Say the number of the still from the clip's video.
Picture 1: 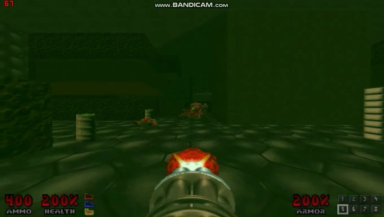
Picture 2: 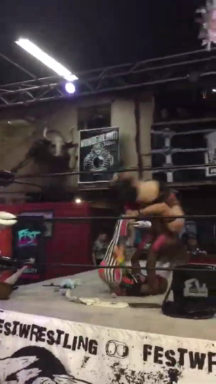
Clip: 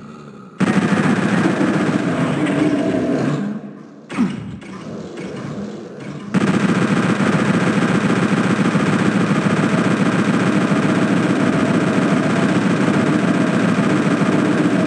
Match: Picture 1